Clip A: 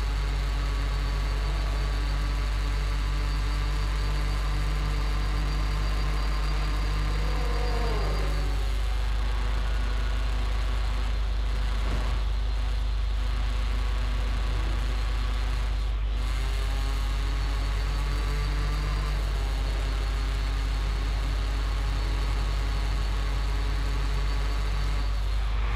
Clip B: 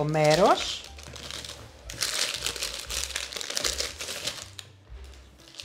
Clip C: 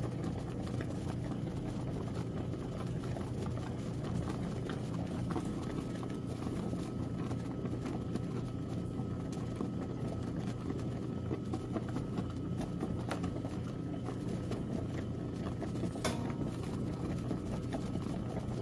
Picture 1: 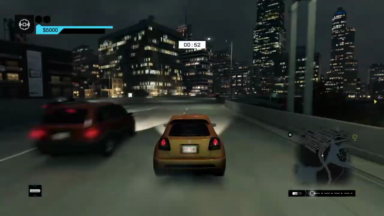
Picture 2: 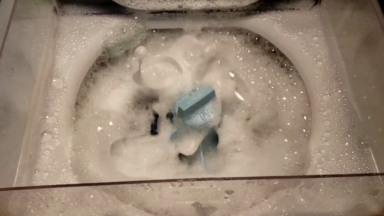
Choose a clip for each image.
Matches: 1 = A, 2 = C